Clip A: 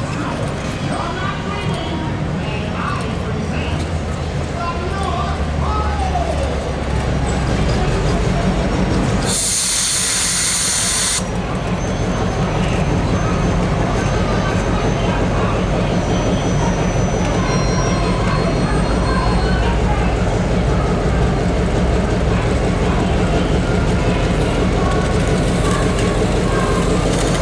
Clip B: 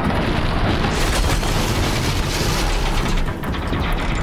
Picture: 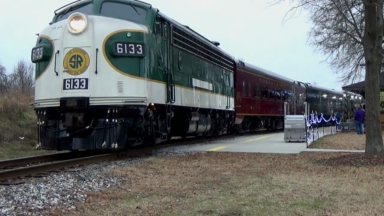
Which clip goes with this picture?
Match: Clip A